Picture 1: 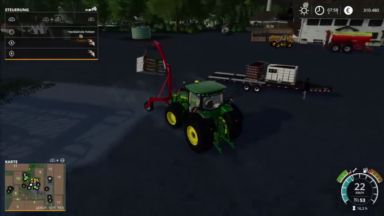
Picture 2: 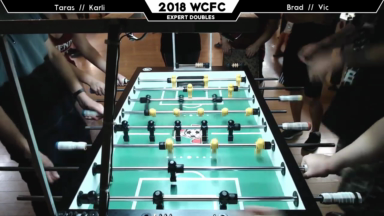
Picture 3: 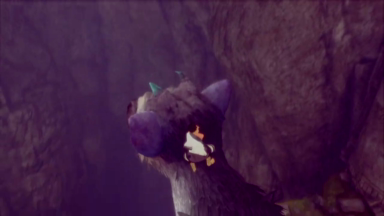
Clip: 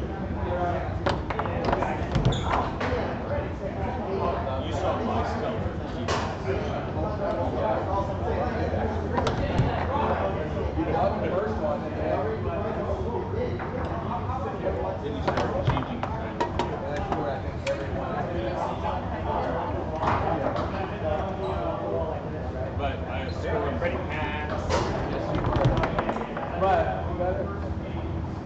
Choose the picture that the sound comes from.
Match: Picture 2